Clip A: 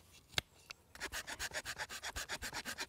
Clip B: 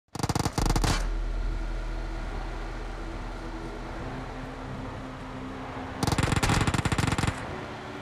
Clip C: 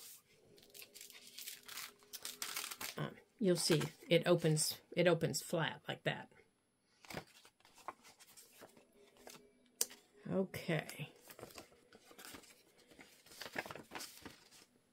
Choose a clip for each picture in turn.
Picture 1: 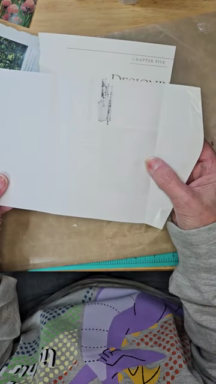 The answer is C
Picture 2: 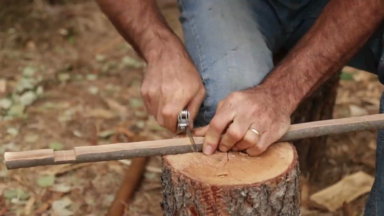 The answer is A